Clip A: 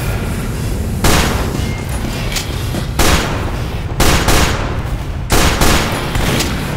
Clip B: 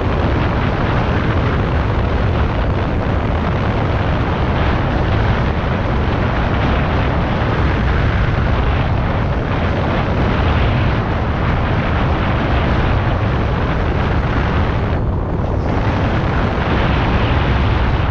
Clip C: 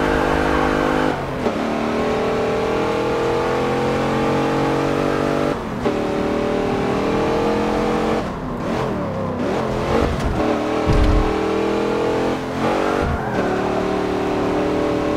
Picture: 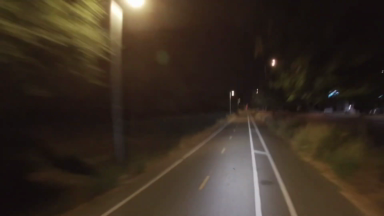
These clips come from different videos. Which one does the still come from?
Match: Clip B